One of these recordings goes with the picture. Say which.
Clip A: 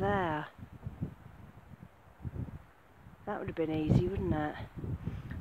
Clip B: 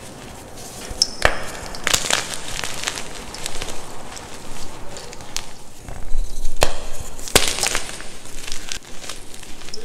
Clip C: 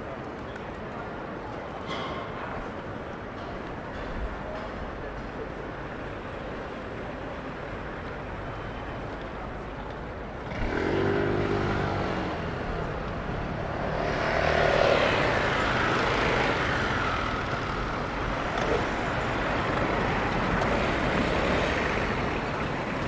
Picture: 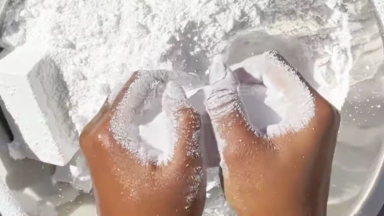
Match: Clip B